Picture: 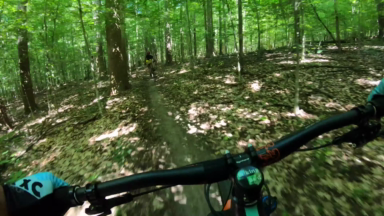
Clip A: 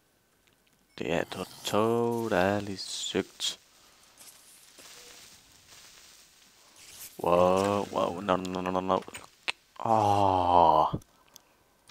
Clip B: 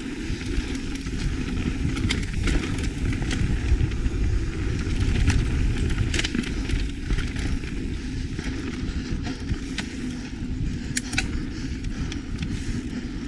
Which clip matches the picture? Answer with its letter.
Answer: B